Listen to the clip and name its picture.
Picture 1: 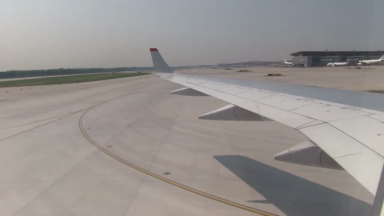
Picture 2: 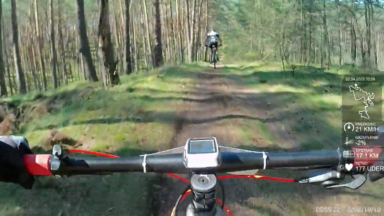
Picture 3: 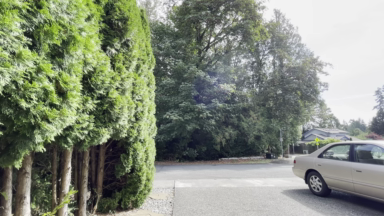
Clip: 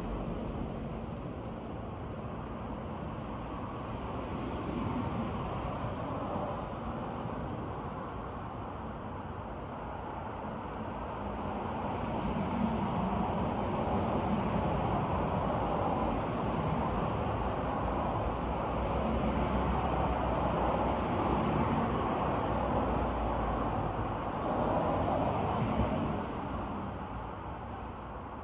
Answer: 3